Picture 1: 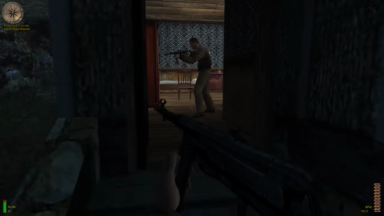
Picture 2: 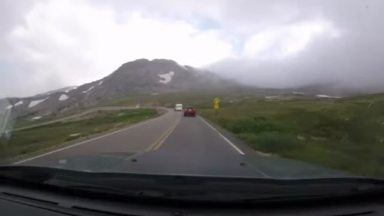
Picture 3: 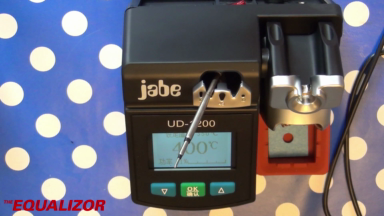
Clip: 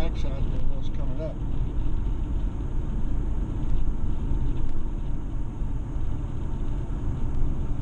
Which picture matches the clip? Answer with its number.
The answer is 2